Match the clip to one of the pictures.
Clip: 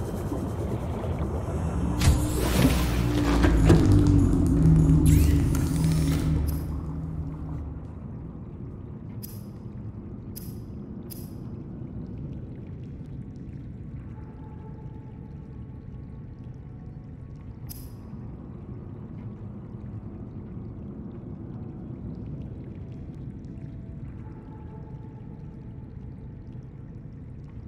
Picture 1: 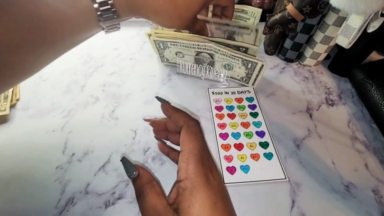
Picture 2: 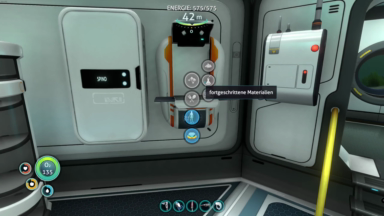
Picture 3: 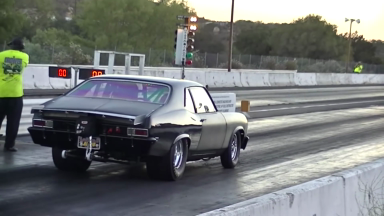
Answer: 2